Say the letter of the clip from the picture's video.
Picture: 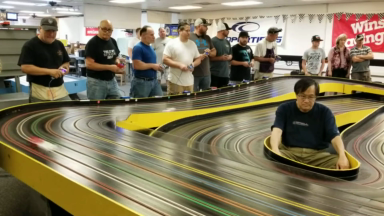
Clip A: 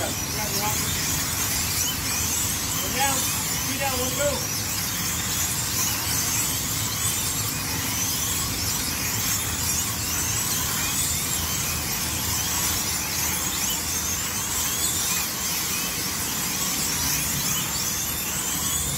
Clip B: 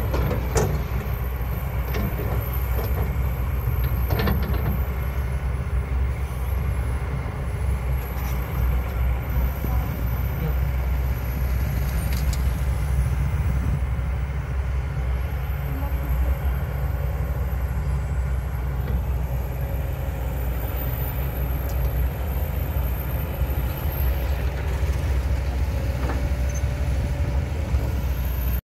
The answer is A